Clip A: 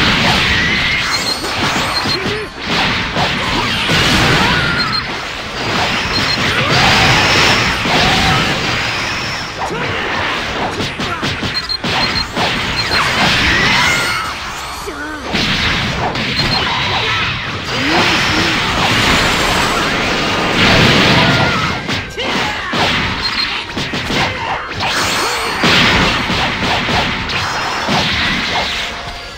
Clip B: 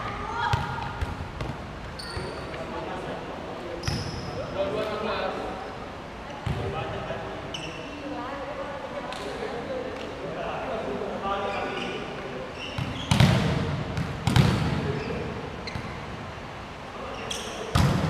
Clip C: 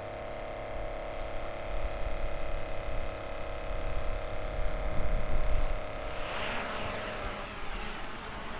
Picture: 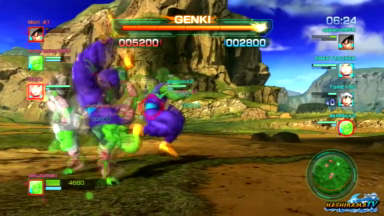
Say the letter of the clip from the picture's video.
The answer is A